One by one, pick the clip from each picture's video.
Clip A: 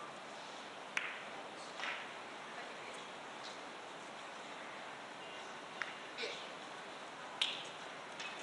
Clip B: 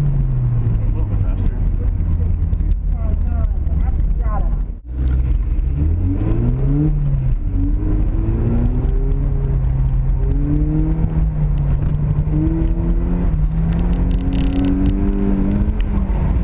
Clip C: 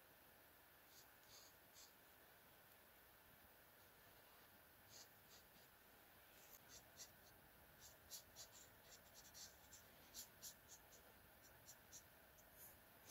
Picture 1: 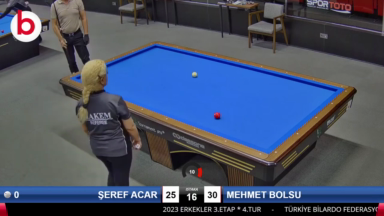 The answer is A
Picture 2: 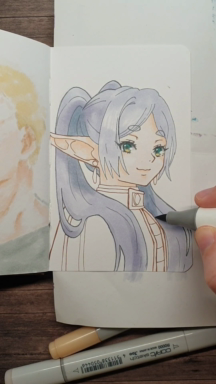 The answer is C